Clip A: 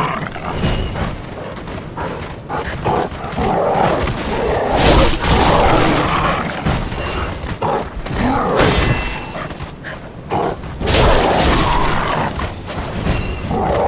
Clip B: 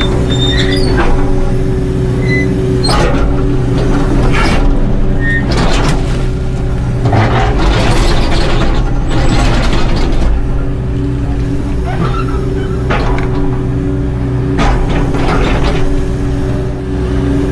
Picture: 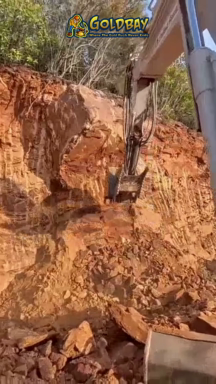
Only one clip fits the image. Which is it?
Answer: B